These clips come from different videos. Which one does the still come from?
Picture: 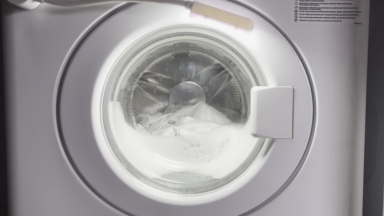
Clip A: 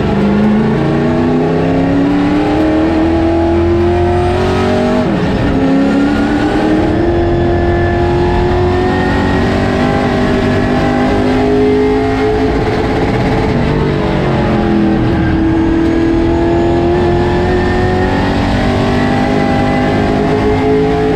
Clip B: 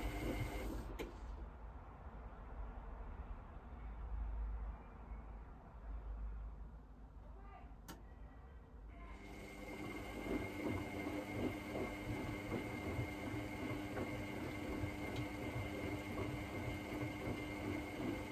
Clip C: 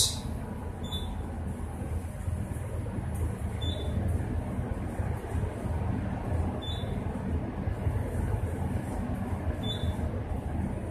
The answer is B